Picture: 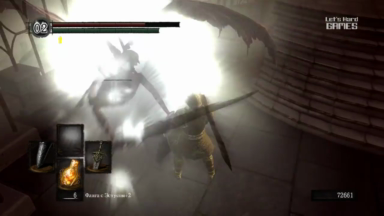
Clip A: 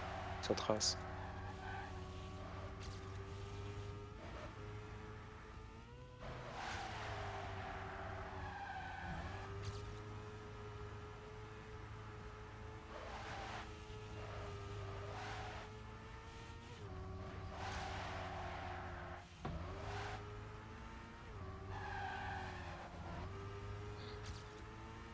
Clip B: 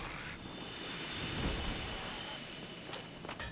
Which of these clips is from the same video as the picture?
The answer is B